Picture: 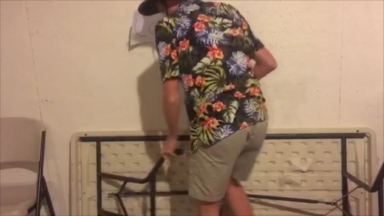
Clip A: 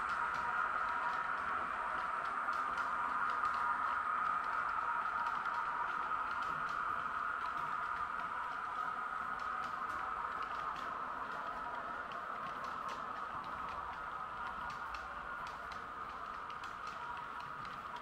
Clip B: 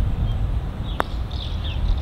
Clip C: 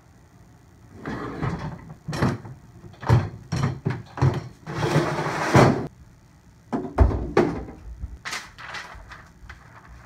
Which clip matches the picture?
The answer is C